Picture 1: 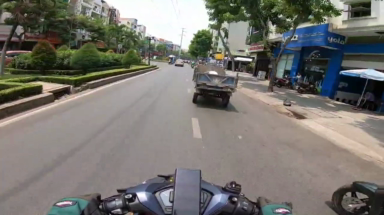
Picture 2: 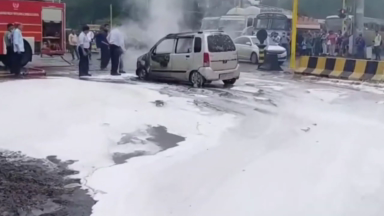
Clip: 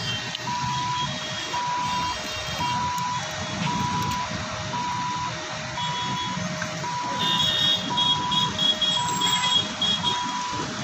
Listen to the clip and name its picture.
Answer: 2